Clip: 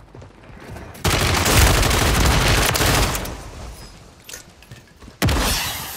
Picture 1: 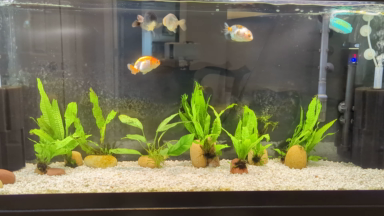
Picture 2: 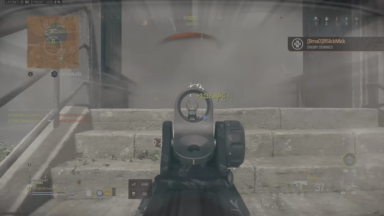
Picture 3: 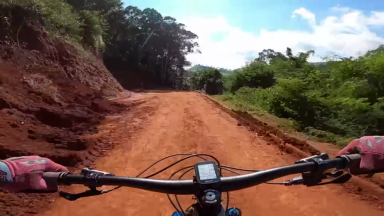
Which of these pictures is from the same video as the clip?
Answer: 2